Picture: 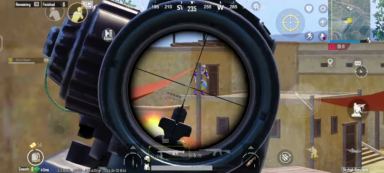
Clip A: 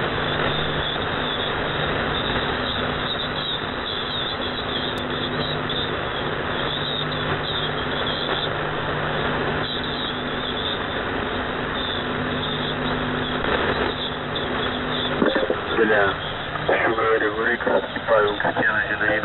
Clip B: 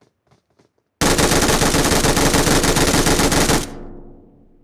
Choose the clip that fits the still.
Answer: B